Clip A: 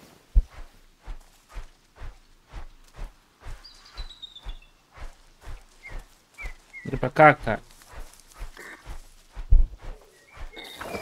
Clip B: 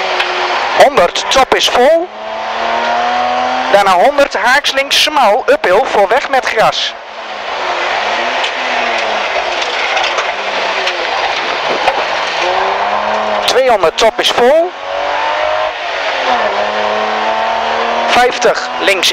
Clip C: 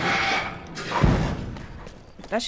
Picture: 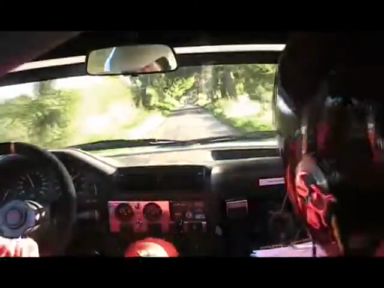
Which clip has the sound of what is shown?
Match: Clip B